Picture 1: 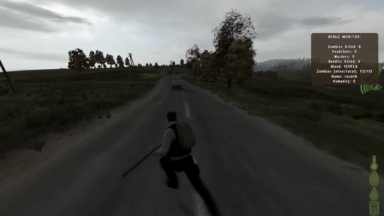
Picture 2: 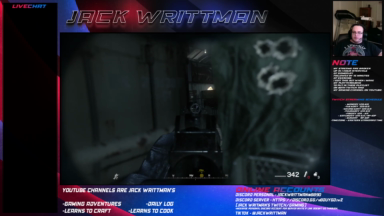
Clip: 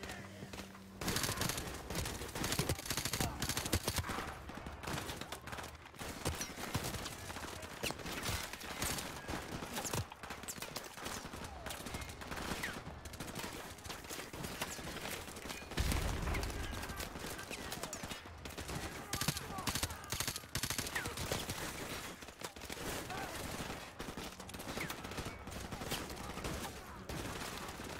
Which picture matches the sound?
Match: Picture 2